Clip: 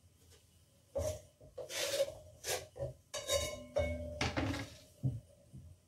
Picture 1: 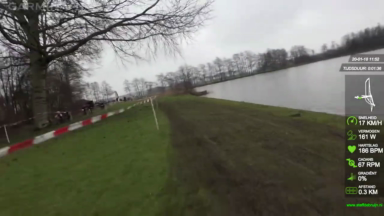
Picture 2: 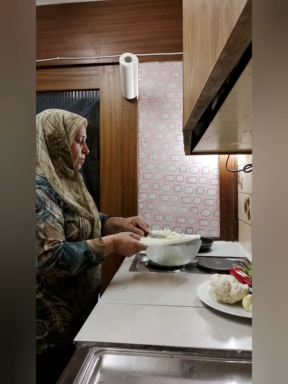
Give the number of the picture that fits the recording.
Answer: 2